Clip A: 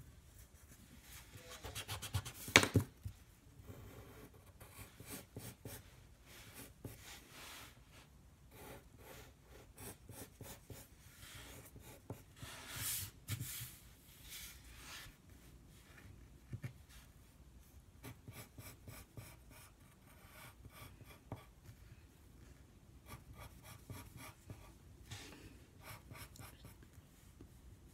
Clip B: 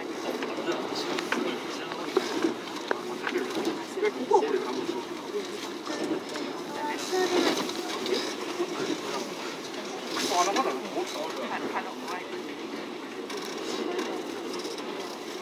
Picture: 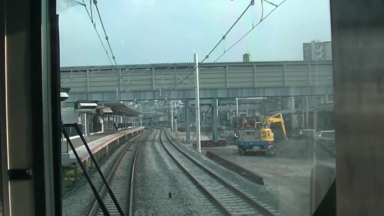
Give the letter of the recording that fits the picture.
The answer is B